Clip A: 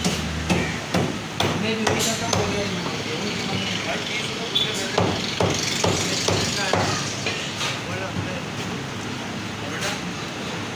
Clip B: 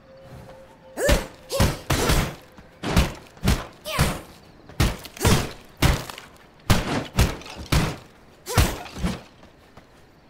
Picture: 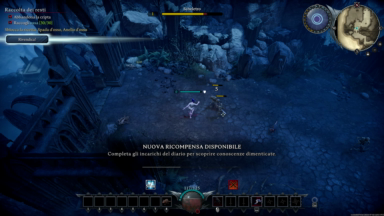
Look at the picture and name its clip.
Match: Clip B